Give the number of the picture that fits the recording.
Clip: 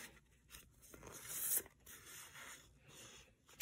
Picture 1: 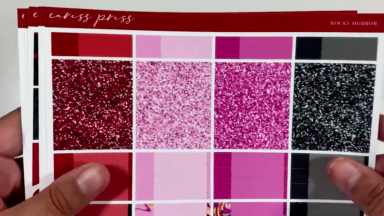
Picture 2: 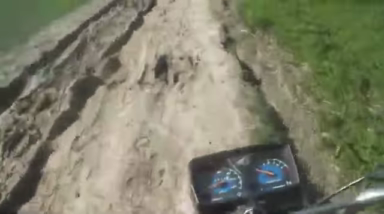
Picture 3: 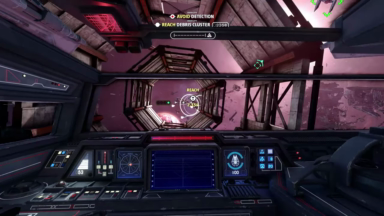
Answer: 1